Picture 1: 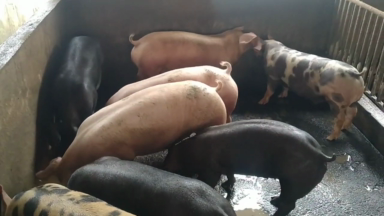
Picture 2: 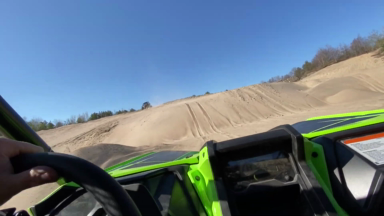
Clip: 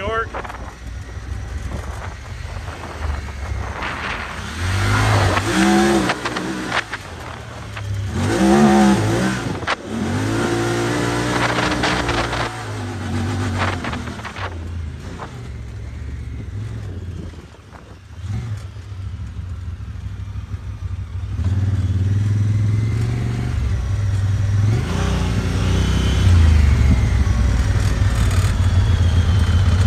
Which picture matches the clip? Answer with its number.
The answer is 2